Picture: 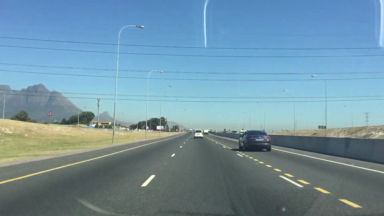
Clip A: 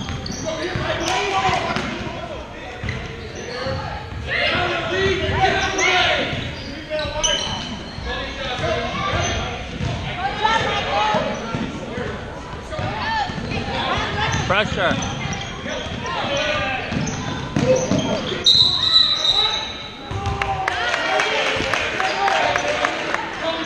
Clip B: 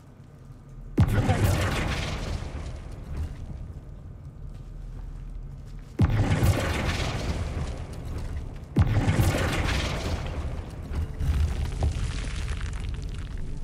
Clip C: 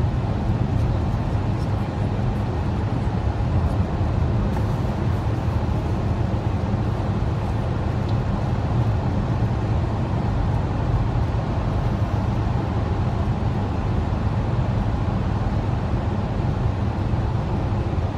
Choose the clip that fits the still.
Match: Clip C